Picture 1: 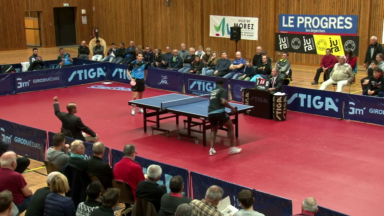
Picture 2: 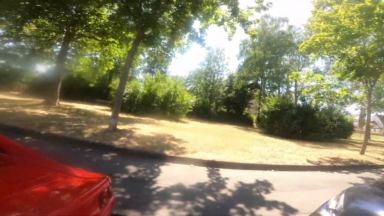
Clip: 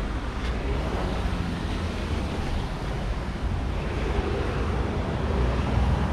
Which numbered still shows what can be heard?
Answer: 2